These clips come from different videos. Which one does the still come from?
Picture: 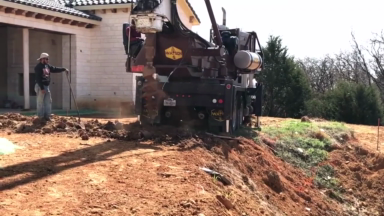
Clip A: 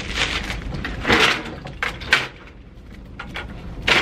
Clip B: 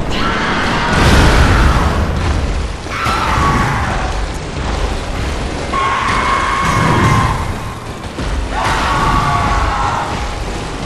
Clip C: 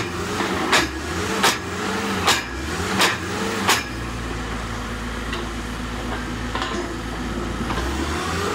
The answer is C